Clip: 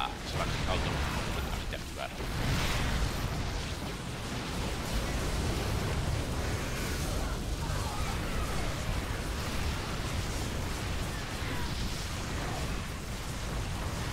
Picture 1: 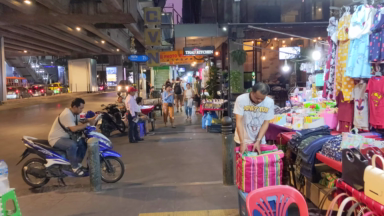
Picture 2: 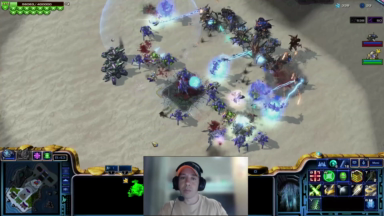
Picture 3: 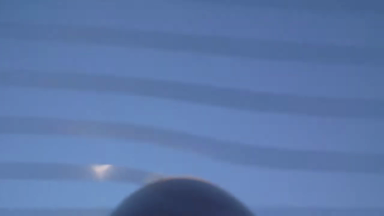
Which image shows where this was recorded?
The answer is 2